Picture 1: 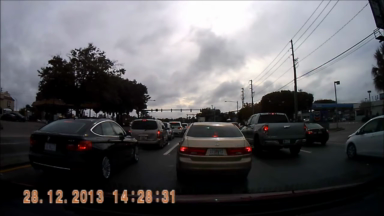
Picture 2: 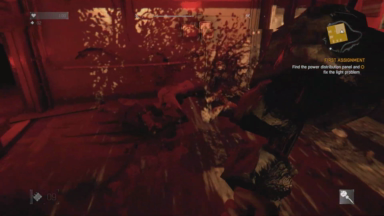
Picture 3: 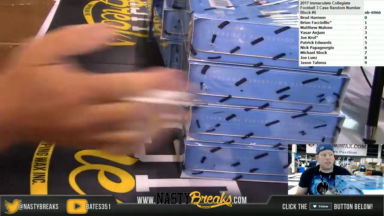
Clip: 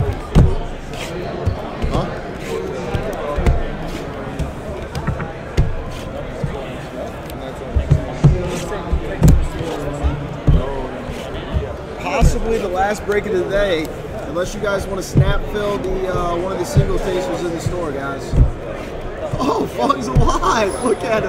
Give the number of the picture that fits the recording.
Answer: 3